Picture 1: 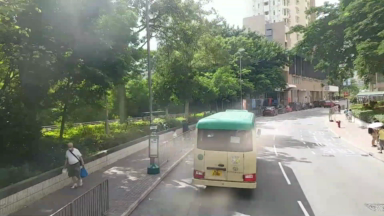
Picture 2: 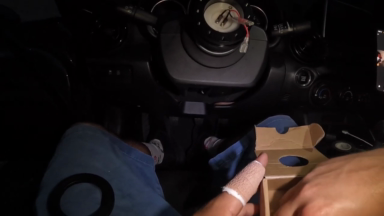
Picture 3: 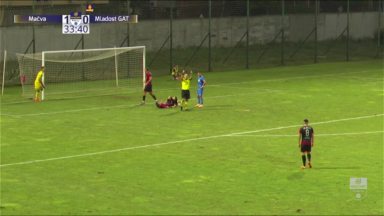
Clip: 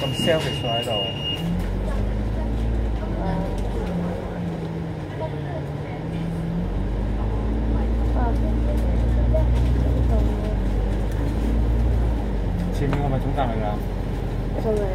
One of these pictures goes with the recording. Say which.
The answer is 1